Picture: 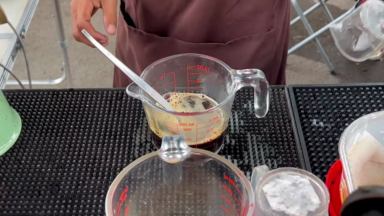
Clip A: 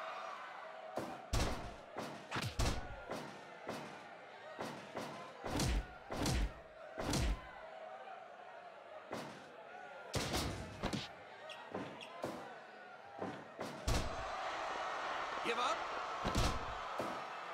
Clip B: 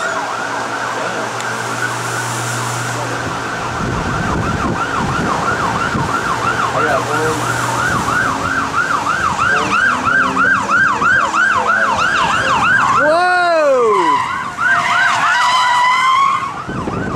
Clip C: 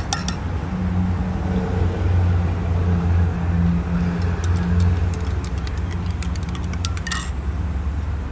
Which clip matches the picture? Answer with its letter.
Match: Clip C